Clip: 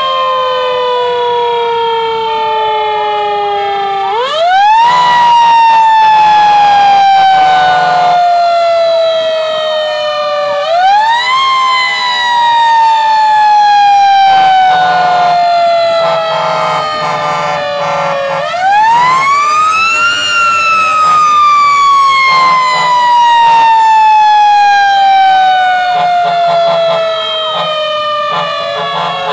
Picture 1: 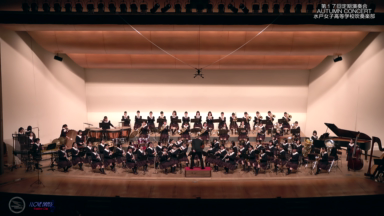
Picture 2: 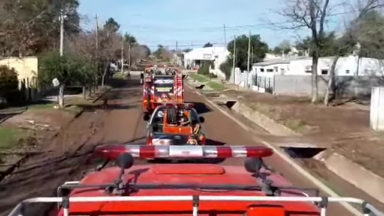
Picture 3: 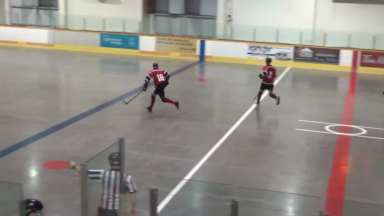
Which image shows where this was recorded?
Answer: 2